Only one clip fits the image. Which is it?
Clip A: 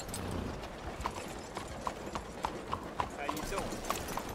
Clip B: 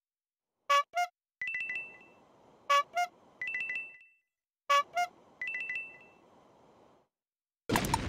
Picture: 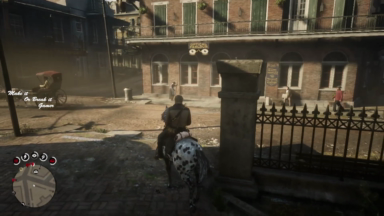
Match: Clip A